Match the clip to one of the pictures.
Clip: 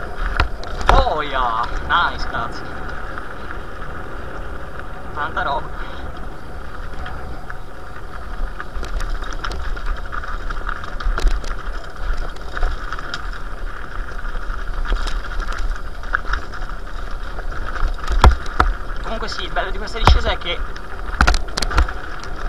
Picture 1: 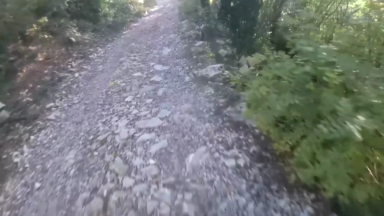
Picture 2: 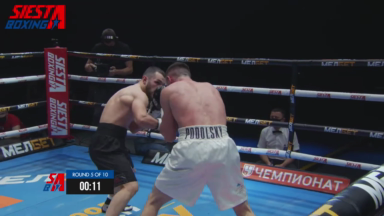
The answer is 1